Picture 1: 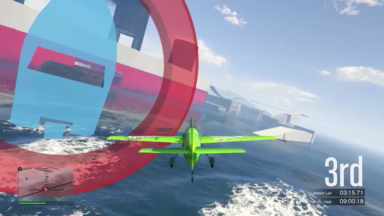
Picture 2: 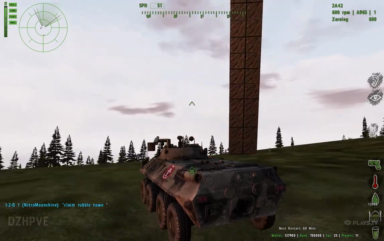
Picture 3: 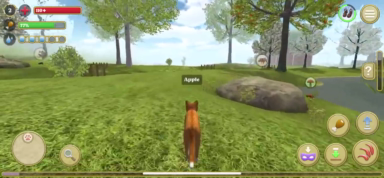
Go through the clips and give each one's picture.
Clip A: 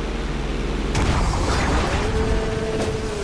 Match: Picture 1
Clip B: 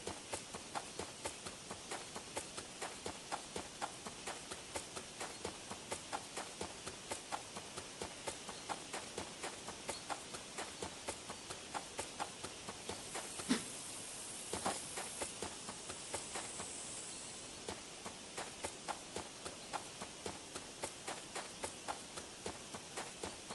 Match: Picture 3